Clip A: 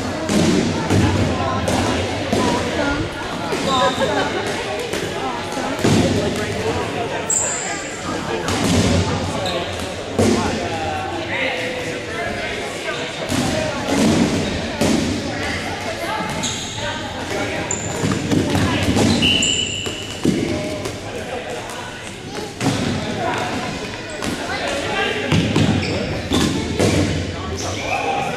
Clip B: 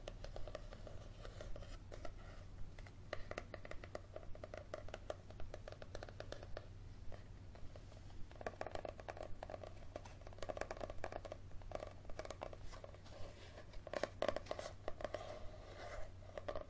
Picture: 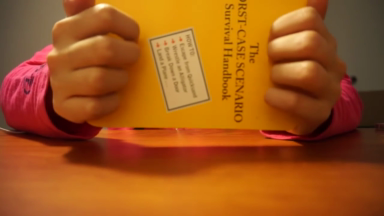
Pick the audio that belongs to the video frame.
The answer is B